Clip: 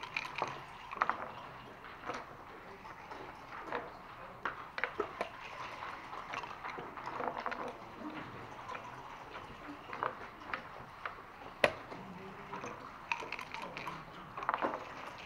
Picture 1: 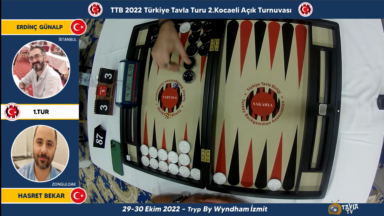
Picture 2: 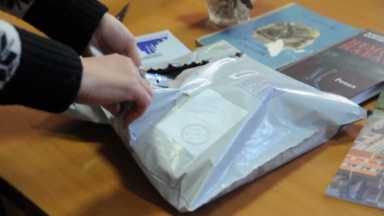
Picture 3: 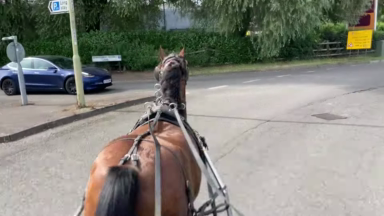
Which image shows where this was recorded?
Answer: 1